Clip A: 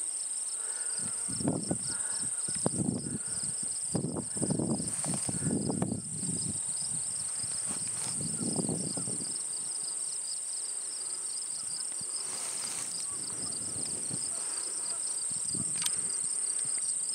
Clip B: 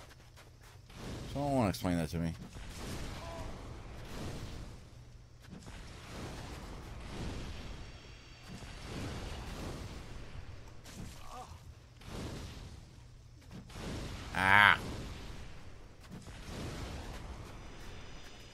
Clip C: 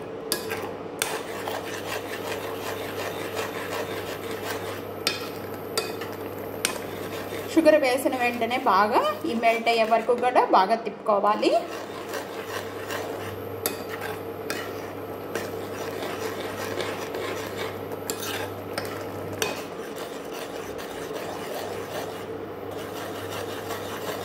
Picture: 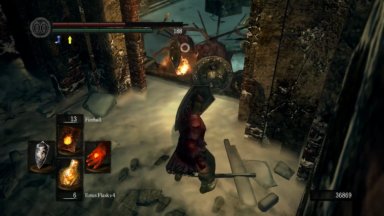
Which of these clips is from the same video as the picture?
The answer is B